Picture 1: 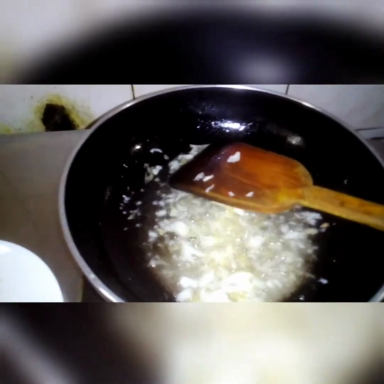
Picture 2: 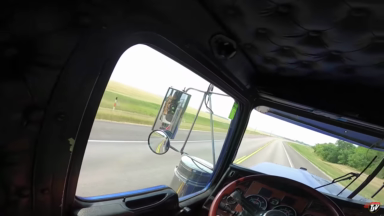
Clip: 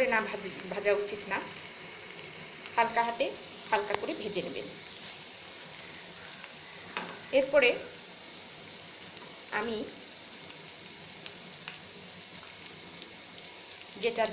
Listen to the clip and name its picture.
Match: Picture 1